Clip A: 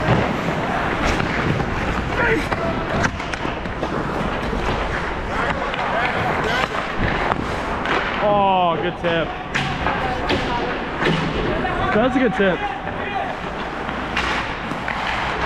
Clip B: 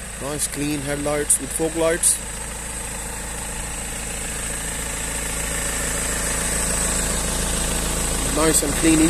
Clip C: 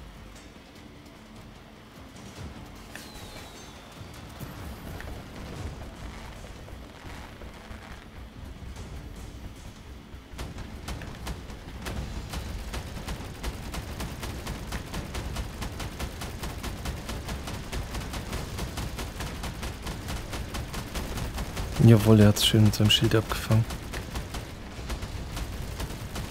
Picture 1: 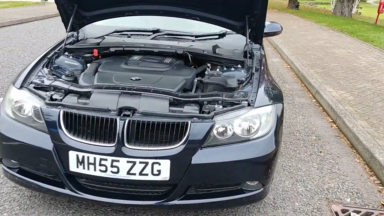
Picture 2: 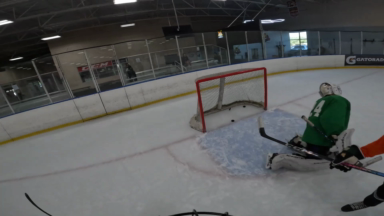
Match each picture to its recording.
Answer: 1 B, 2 A